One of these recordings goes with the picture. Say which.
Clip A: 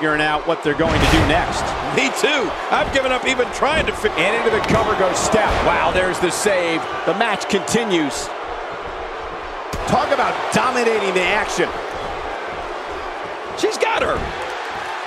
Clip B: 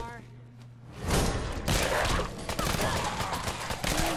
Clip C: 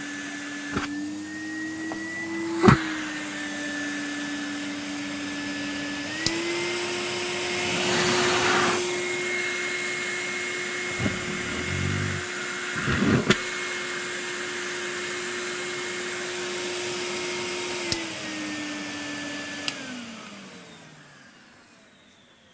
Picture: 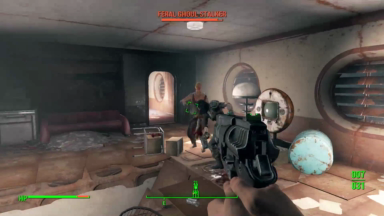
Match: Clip B